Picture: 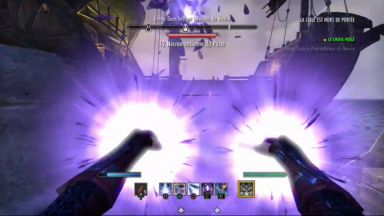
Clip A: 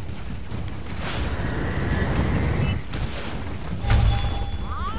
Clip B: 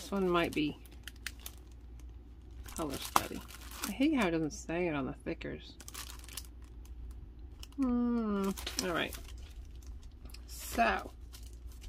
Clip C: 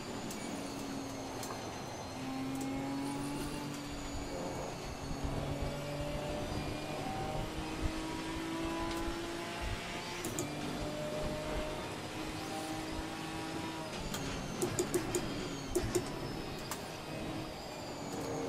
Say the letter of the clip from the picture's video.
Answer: A